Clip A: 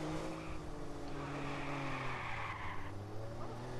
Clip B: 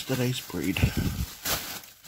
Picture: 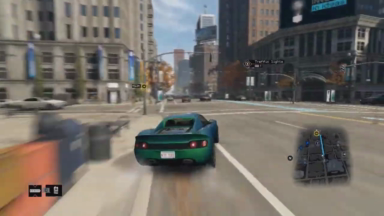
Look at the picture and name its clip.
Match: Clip A